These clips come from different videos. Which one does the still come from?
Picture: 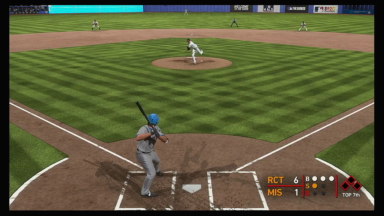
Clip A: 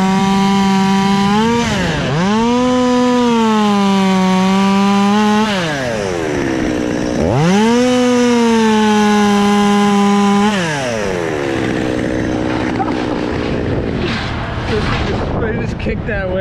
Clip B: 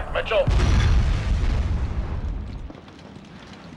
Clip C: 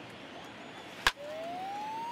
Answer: C